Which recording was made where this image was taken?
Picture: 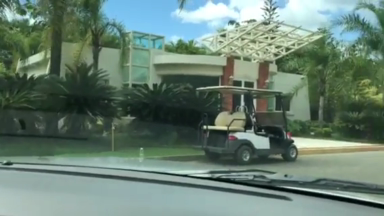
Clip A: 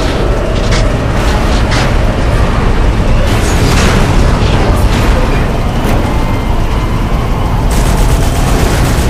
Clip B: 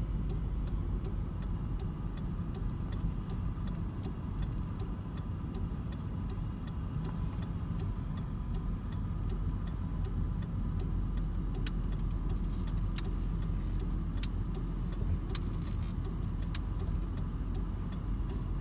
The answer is B